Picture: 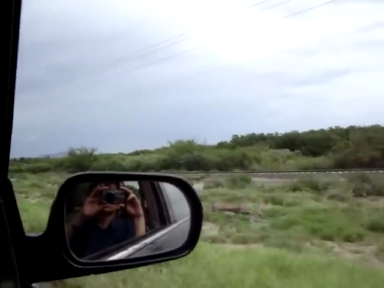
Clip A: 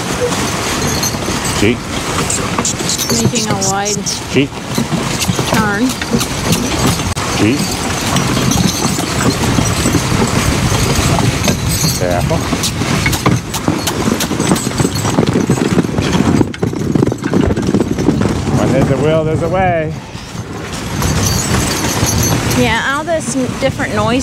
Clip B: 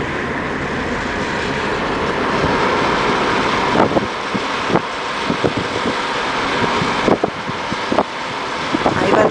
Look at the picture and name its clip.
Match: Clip B